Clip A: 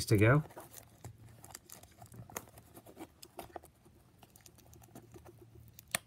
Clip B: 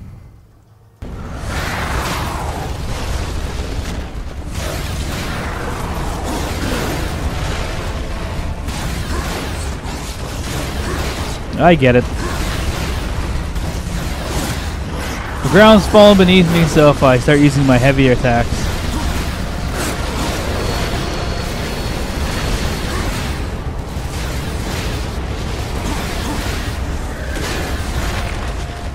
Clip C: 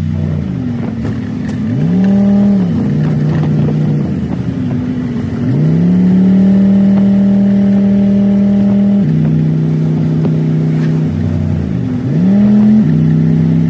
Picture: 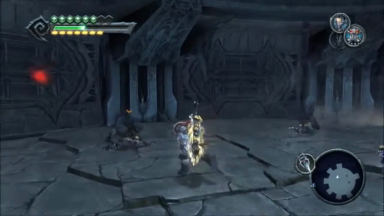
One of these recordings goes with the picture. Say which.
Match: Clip B